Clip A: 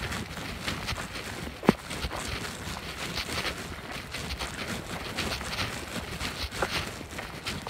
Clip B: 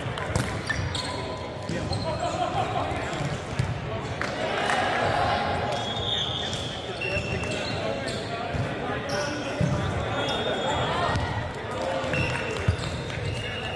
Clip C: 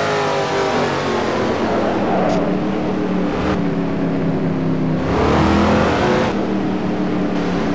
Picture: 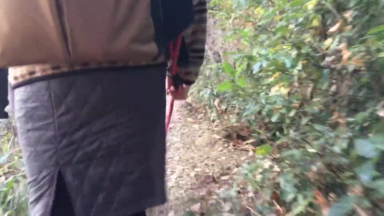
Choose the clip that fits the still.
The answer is A